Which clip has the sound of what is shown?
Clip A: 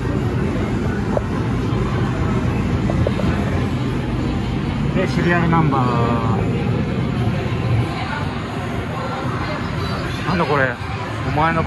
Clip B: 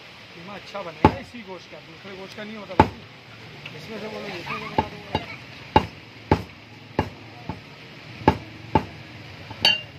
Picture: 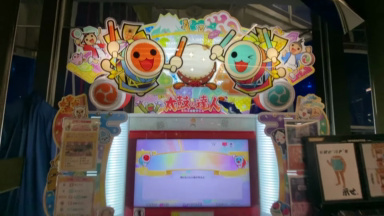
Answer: A